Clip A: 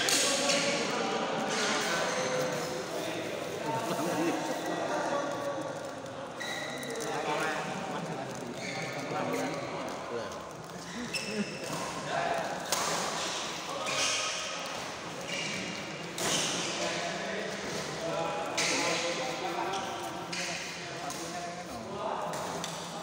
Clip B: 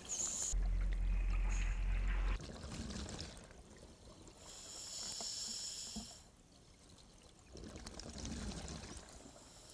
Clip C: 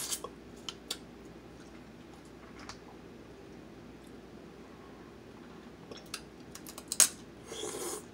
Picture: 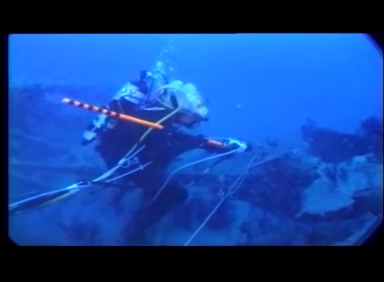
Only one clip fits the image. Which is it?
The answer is B